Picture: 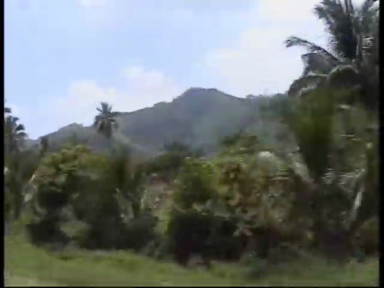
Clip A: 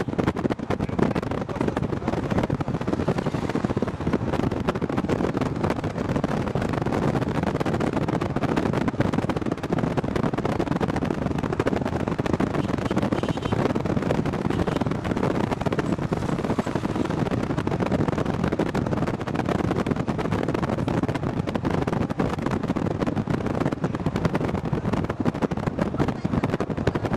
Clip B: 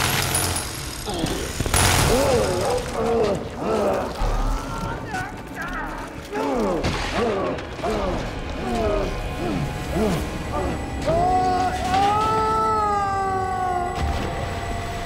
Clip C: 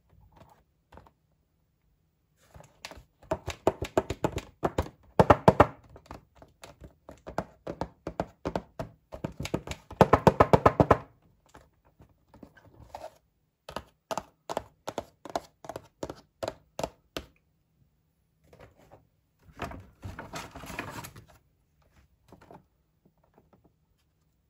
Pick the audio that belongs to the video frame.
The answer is A